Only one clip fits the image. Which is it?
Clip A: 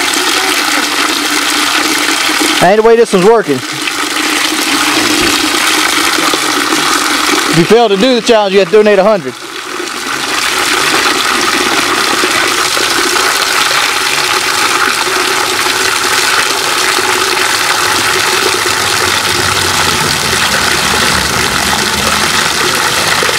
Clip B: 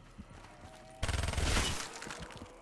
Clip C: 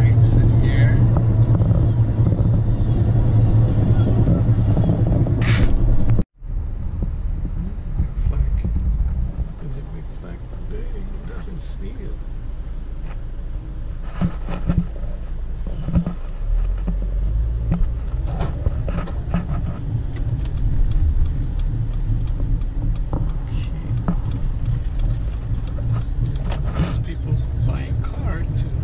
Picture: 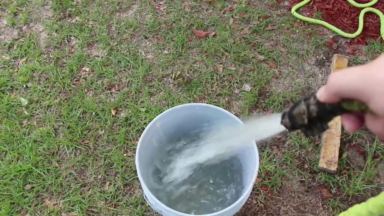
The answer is A